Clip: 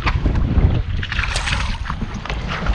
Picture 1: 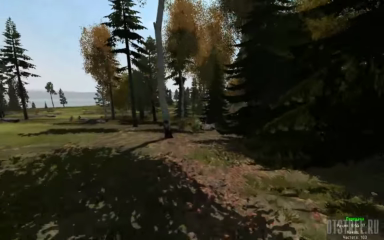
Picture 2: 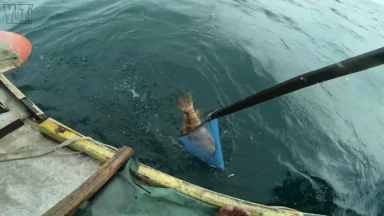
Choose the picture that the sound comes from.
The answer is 2